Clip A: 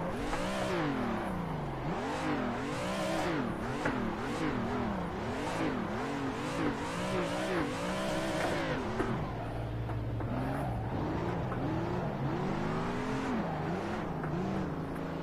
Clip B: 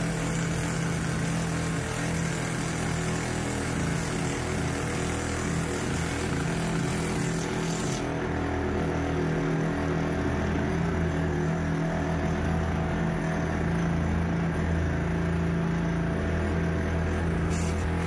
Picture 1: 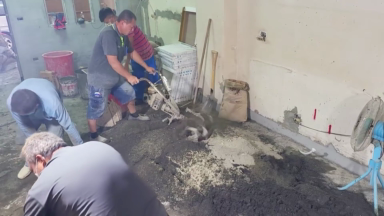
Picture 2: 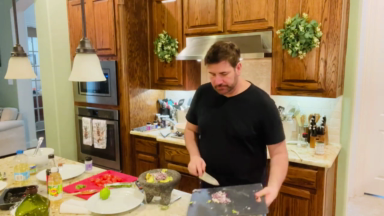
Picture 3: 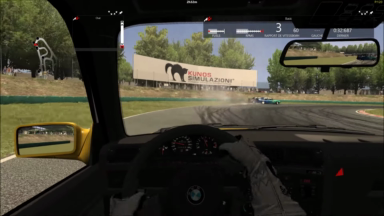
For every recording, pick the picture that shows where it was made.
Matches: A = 3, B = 1